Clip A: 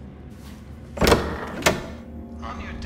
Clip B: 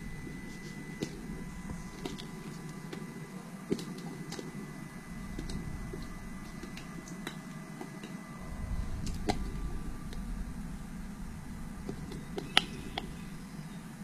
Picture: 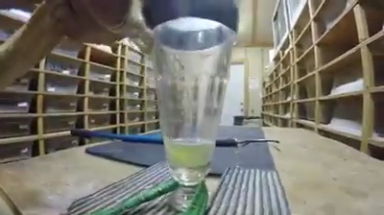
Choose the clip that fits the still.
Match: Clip B